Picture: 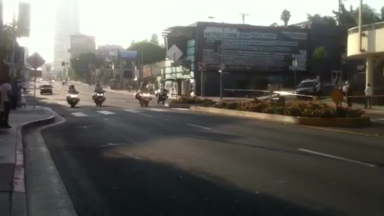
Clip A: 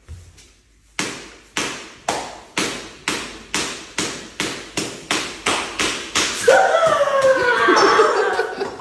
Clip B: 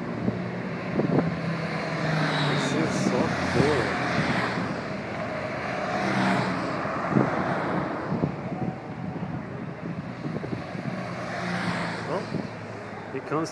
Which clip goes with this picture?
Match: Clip B